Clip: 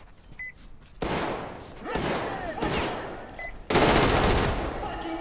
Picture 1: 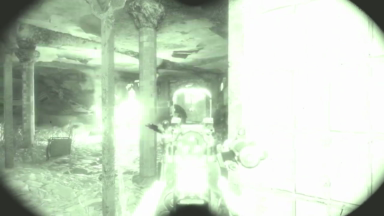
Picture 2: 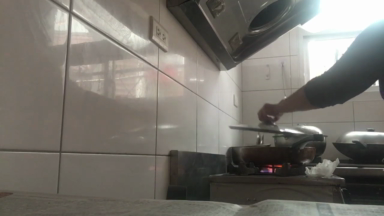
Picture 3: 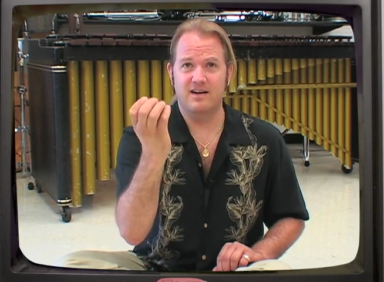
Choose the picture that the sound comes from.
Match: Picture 1